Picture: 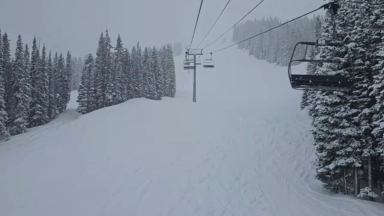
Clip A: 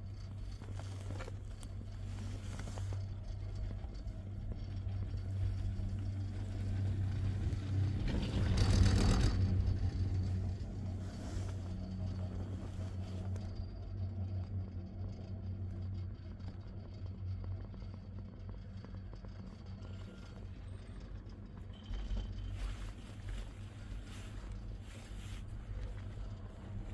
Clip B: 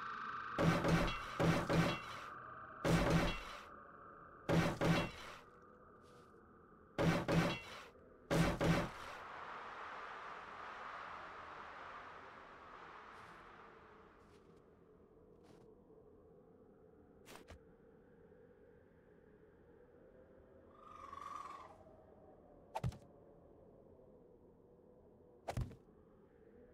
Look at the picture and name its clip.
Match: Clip A